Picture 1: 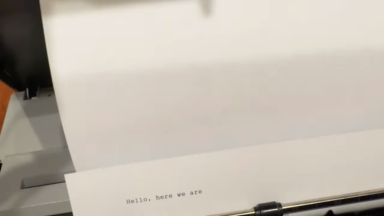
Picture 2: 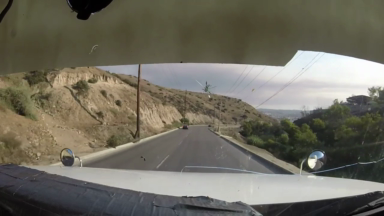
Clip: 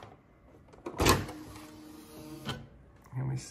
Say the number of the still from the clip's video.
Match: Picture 1